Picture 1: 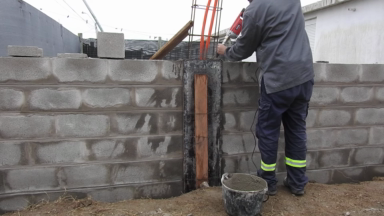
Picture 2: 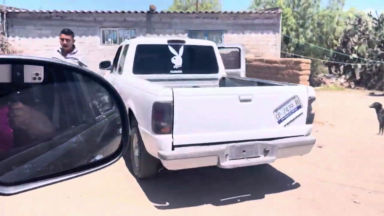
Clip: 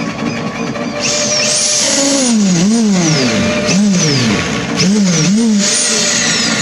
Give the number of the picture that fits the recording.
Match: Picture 1